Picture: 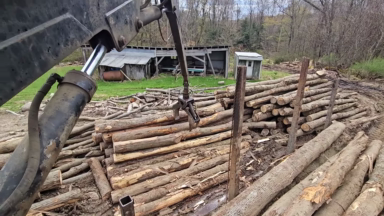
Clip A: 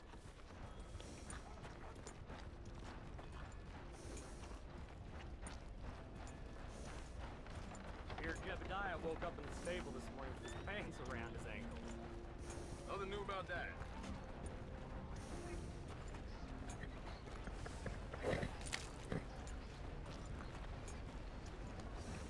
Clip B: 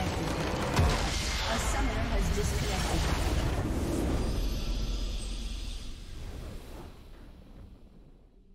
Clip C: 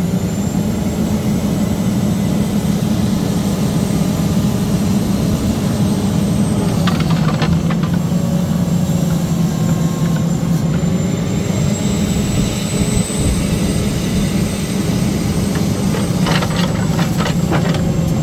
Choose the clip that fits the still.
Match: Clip C